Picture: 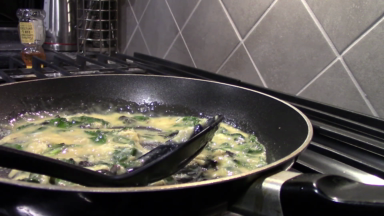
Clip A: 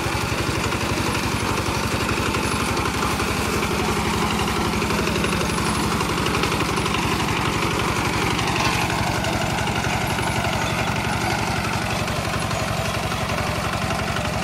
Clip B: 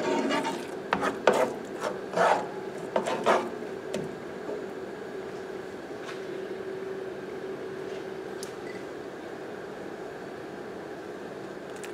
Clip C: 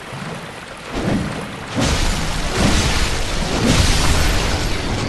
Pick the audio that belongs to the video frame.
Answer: B